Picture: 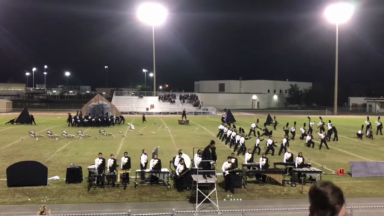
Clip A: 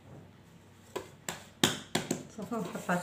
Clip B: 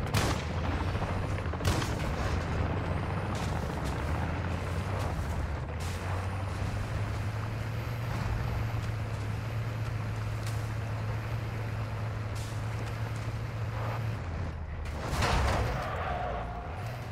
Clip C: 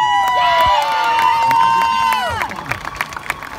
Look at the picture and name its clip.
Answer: C